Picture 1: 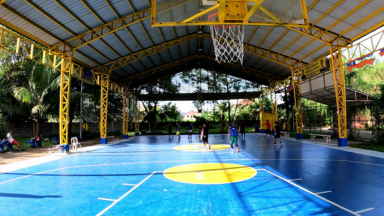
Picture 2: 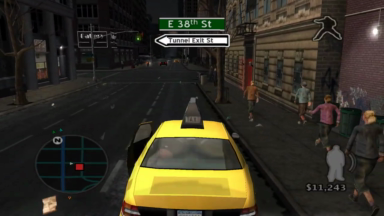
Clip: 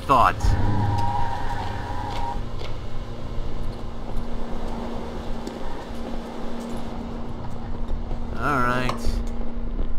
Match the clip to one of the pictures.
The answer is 2